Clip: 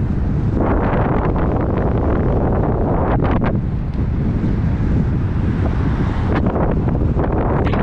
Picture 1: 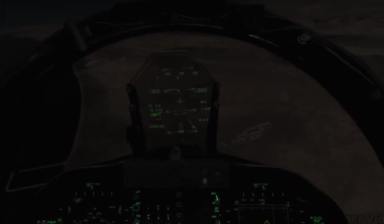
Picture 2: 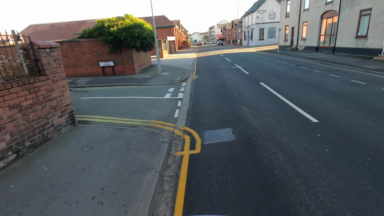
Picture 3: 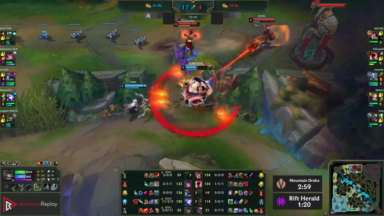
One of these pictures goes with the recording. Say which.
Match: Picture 2